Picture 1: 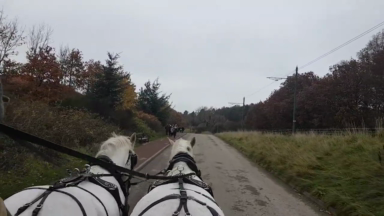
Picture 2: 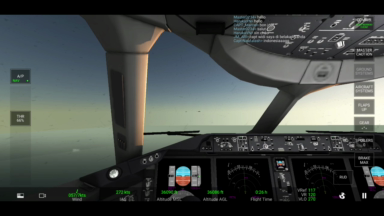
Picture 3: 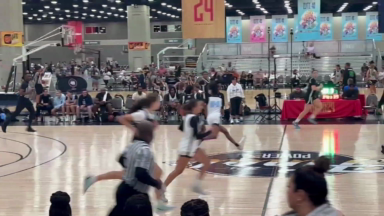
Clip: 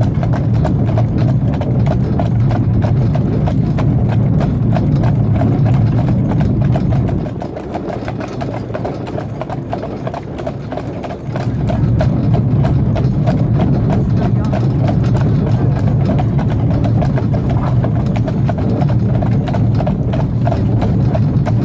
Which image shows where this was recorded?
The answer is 1